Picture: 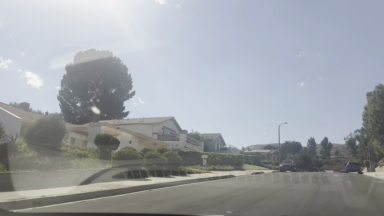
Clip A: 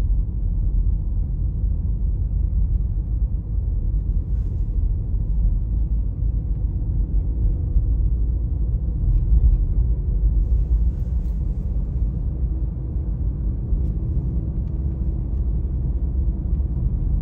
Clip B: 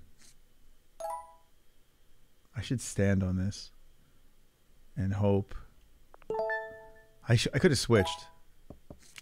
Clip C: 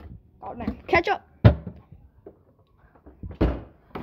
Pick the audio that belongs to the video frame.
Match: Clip A